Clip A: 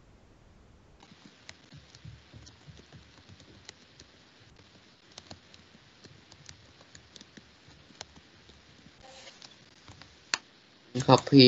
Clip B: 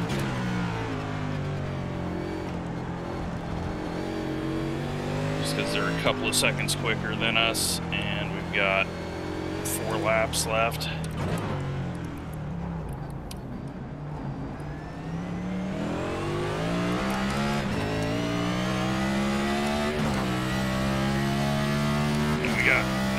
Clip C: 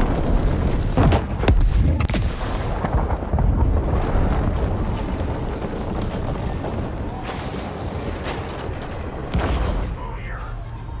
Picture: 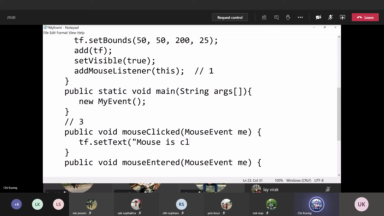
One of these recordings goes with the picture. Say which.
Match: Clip A